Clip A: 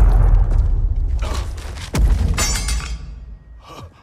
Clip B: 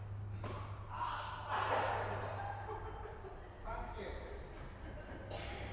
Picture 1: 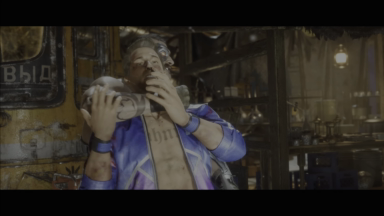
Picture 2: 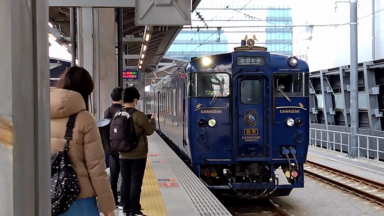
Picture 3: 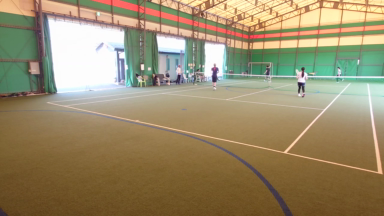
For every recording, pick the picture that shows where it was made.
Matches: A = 1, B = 3